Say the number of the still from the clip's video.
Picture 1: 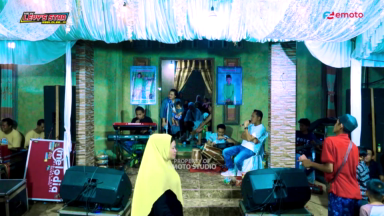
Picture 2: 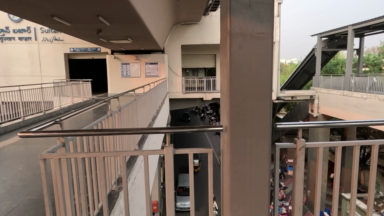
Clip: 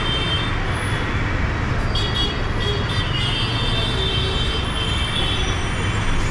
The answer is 2